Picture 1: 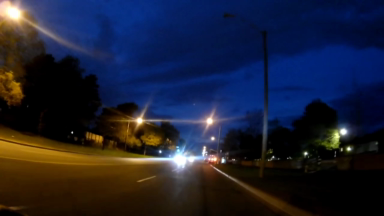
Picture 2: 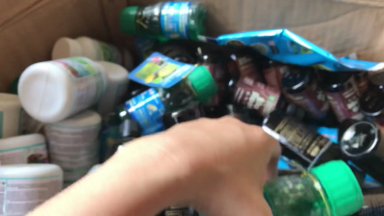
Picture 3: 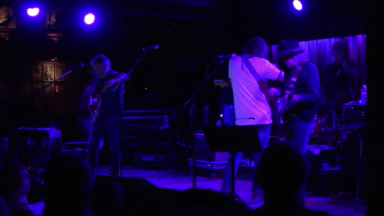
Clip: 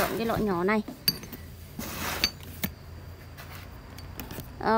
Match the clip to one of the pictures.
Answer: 2